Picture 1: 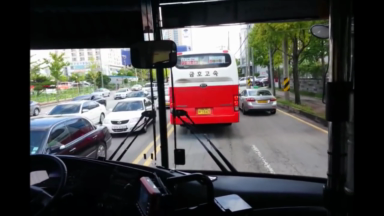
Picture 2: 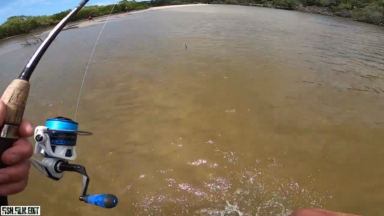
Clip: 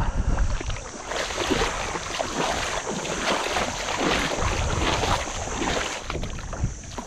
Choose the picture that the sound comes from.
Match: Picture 2